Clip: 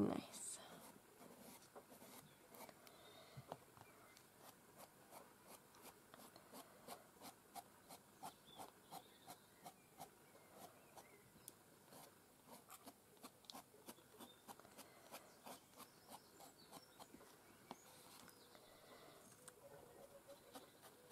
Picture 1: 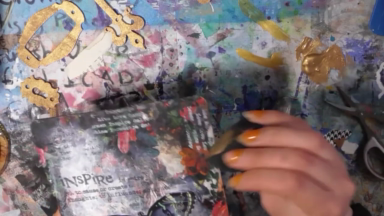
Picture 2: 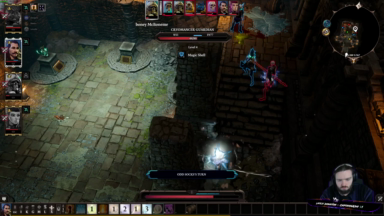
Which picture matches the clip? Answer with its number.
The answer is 1